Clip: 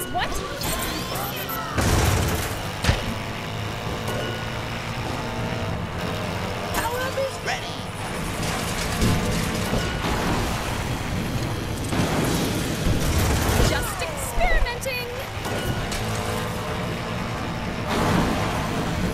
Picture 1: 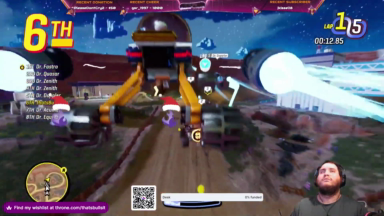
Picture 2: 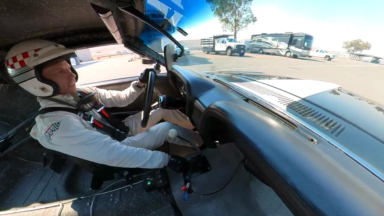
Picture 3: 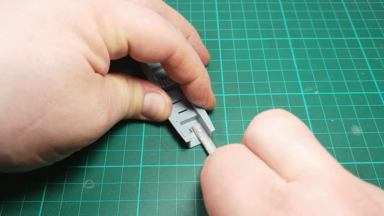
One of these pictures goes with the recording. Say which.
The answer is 1